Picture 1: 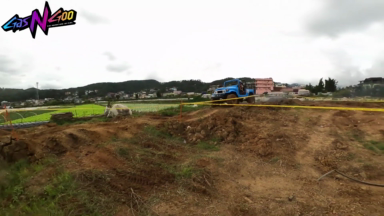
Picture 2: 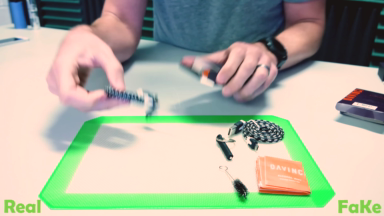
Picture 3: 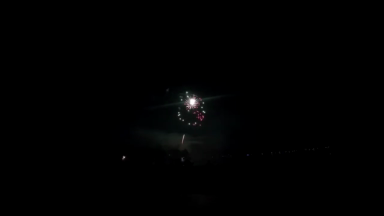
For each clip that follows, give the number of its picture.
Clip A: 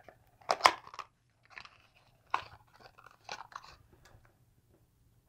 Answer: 2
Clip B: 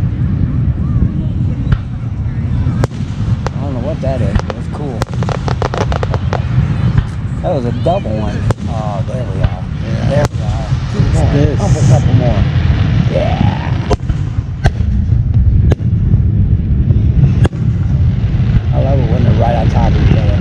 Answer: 3